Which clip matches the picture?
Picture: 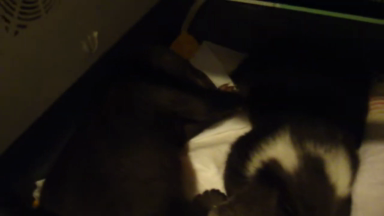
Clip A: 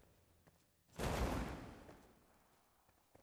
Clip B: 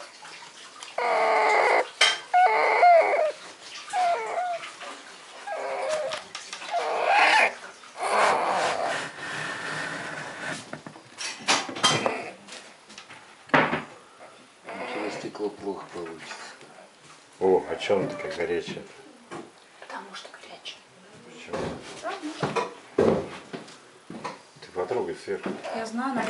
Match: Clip B